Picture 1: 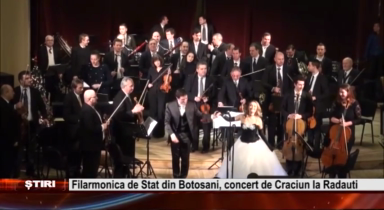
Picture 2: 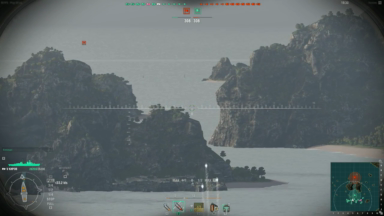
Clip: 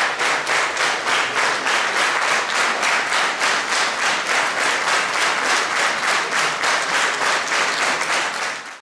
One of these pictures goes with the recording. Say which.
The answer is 1